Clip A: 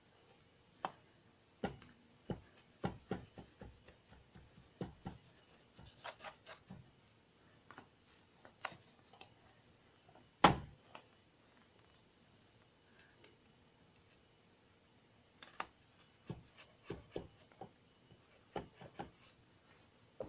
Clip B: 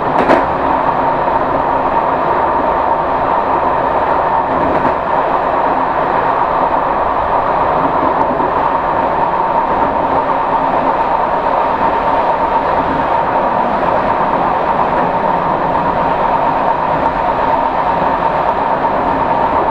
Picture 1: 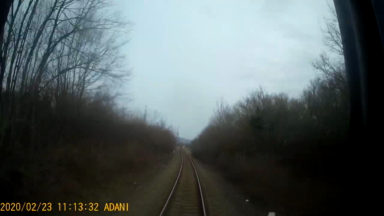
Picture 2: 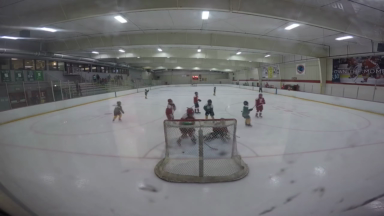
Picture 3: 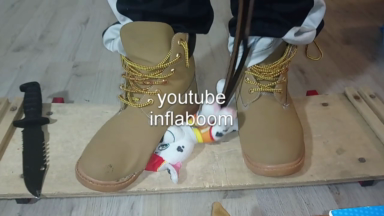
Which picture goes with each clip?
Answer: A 3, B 1